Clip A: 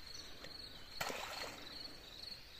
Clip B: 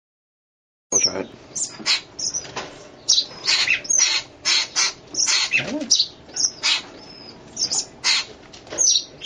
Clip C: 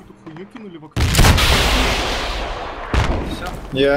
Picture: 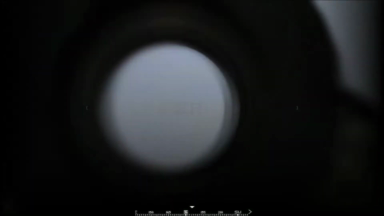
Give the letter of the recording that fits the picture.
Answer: C